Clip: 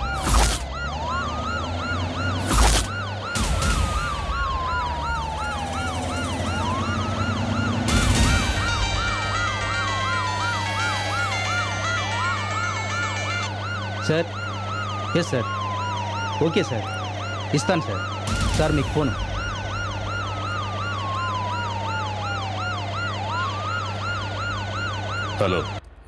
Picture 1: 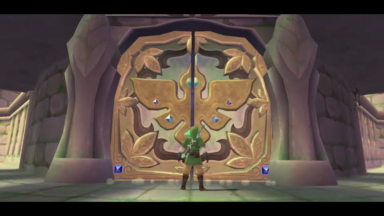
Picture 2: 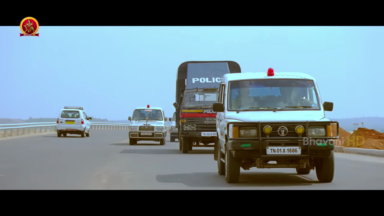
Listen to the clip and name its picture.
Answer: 2